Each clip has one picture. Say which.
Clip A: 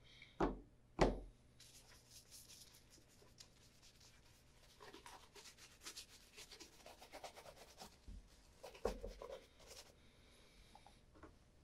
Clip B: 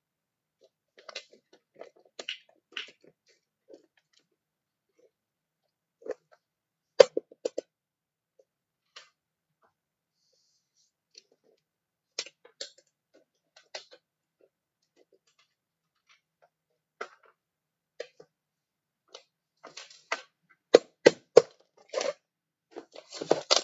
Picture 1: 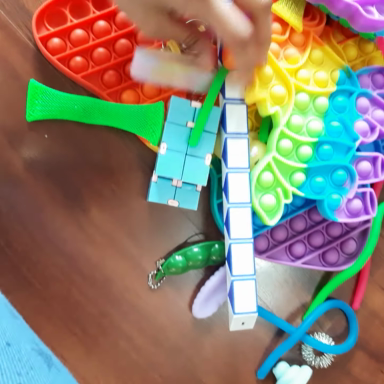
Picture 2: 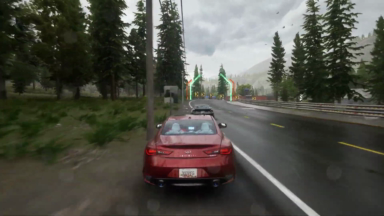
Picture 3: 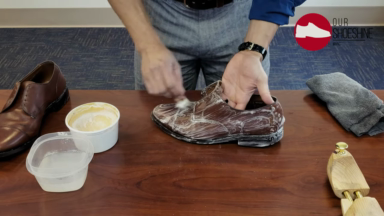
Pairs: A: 3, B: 1